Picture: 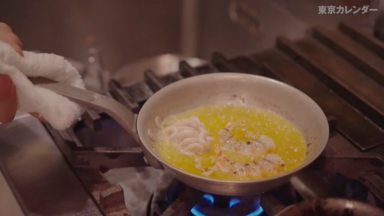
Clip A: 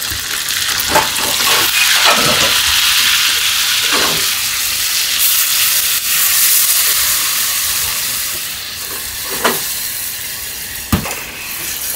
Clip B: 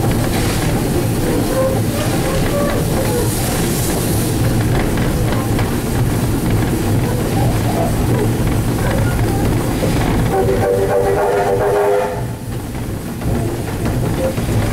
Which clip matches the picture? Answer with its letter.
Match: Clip A